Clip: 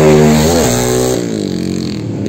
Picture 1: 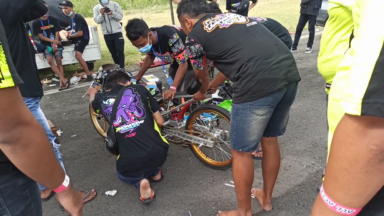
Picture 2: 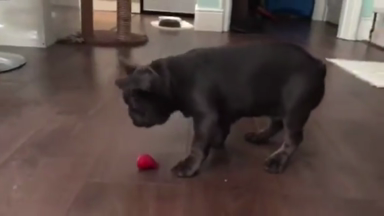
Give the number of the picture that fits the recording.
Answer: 1